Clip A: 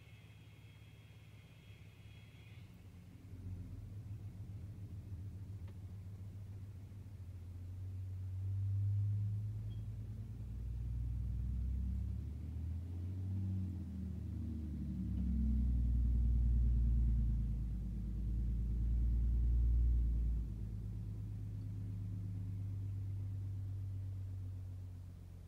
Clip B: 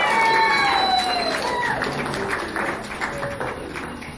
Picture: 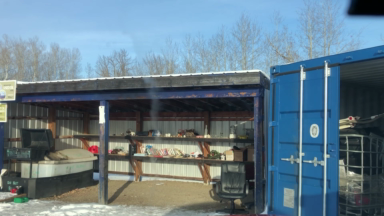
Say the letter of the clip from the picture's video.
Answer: A